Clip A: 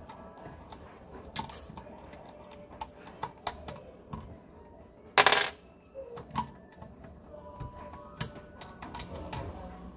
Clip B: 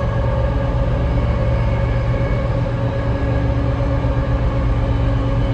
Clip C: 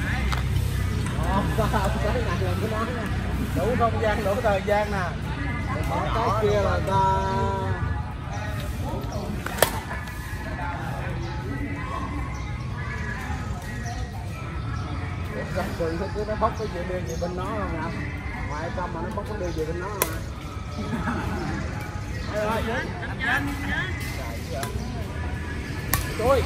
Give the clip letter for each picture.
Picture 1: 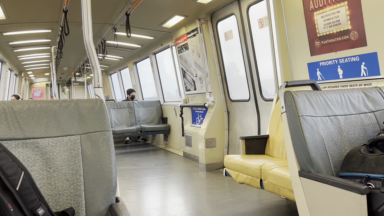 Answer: B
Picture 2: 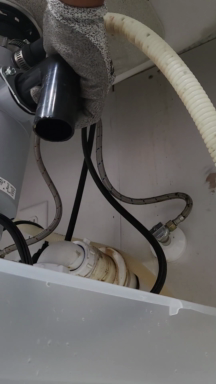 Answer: A